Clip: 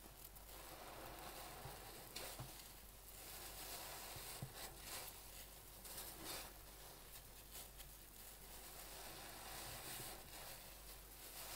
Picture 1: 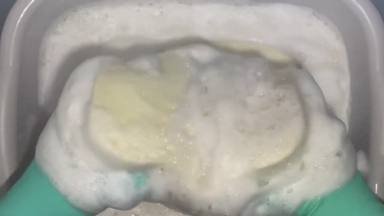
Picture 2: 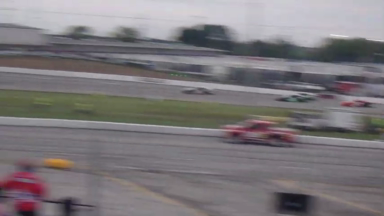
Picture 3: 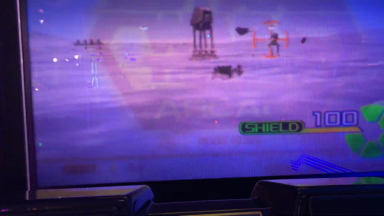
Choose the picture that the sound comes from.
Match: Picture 1